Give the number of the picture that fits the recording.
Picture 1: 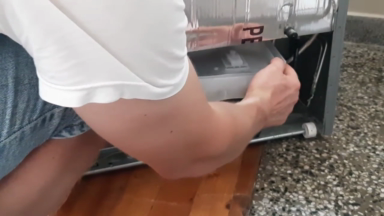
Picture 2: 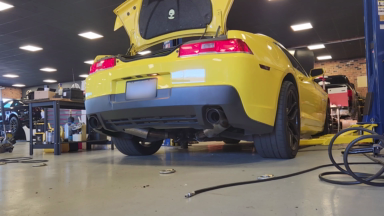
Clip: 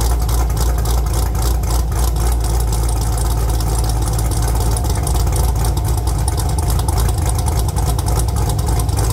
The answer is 2